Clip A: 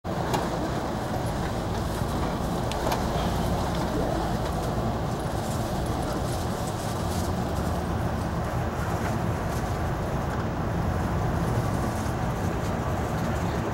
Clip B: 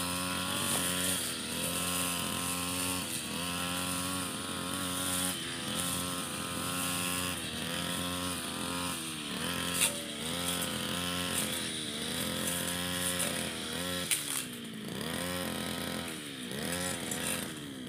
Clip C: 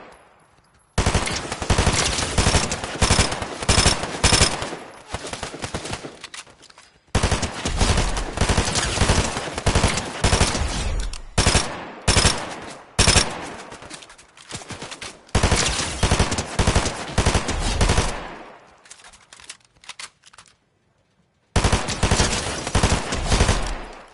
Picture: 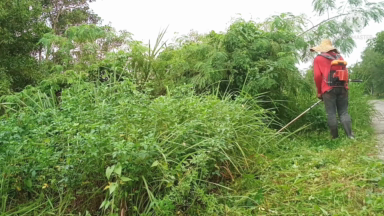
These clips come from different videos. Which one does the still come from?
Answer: B